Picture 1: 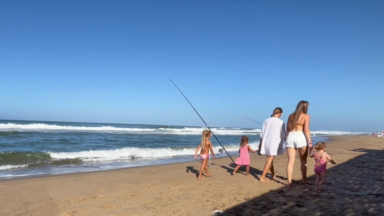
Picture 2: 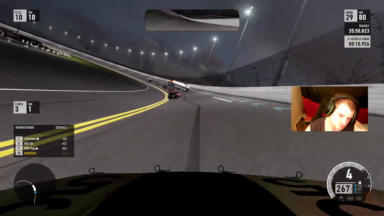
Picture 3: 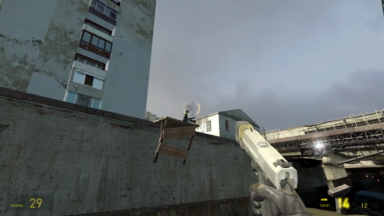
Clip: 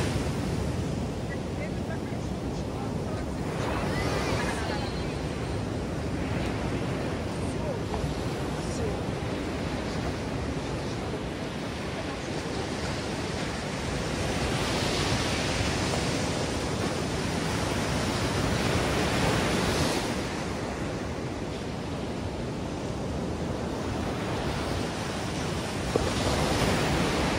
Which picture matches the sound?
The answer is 1